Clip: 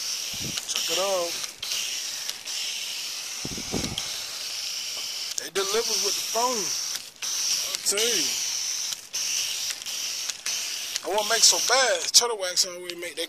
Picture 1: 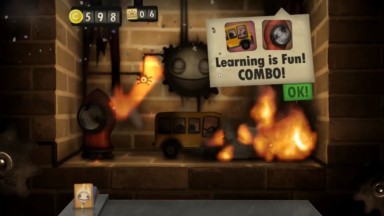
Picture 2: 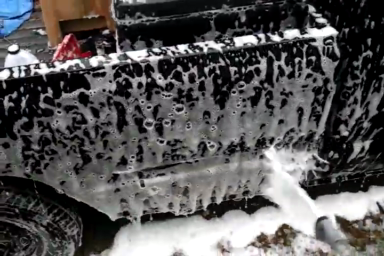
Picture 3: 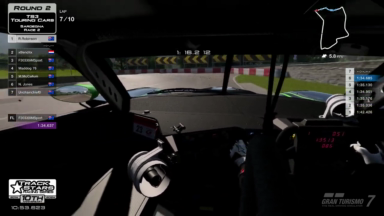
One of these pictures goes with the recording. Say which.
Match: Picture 2